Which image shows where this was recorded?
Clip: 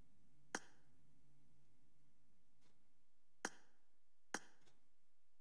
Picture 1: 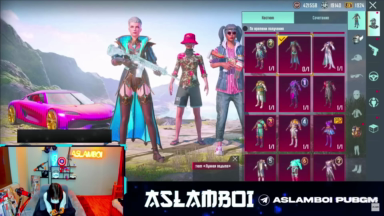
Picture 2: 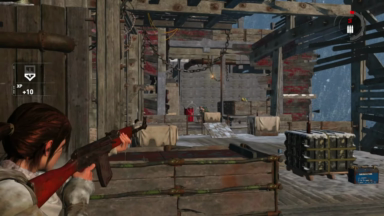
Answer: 1